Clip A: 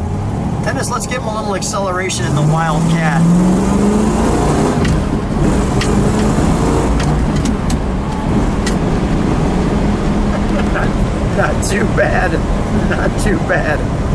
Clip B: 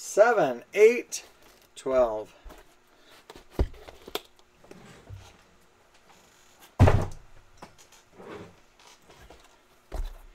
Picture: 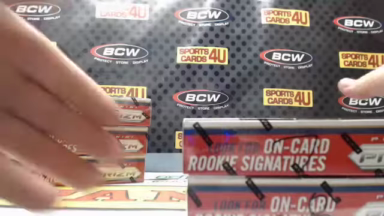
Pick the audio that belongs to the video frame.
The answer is B